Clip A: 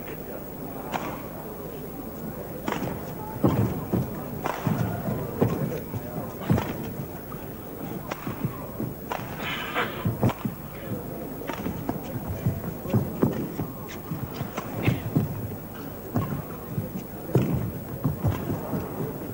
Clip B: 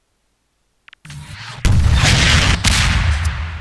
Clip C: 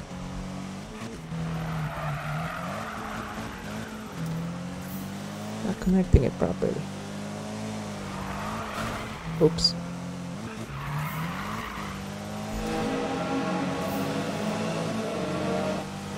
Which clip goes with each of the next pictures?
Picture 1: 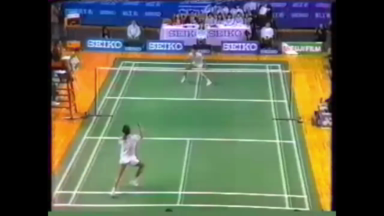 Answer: A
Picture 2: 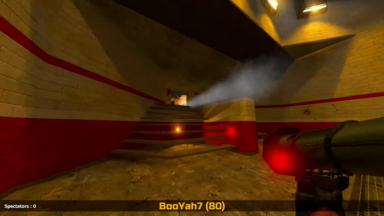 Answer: B